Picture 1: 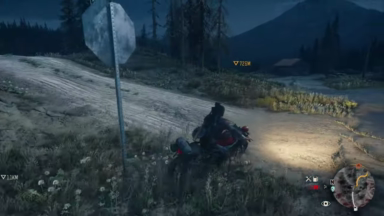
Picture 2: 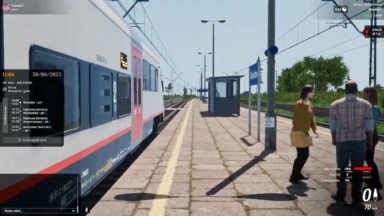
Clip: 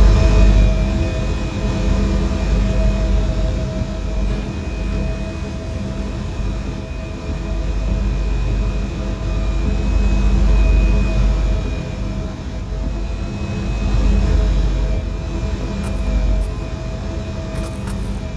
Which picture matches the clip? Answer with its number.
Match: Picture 2